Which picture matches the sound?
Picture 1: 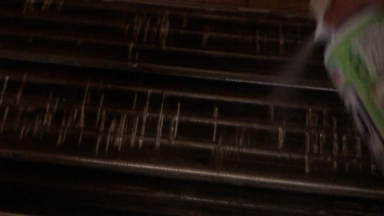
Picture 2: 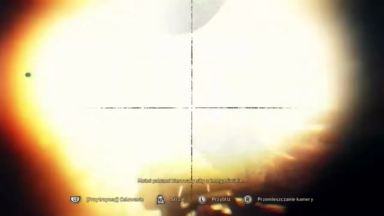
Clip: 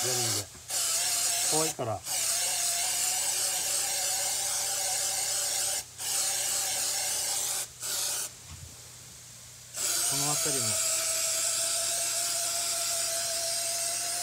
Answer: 1